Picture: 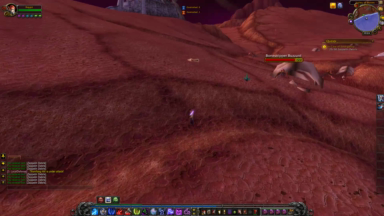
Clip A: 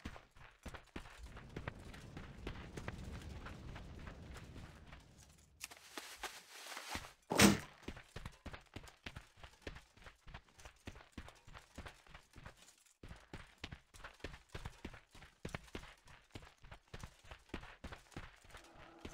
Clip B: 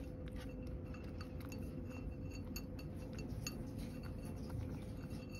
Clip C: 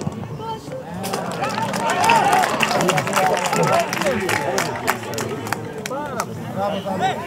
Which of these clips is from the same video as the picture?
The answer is A